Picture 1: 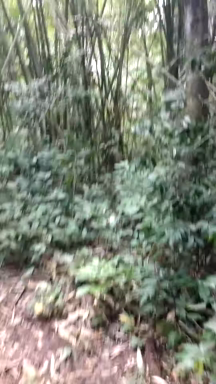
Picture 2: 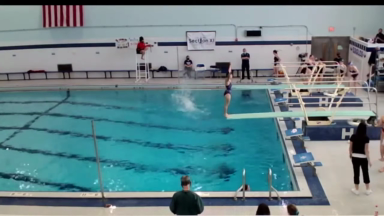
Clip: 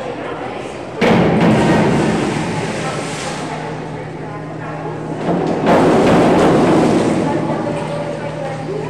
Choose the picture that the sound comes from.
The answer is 2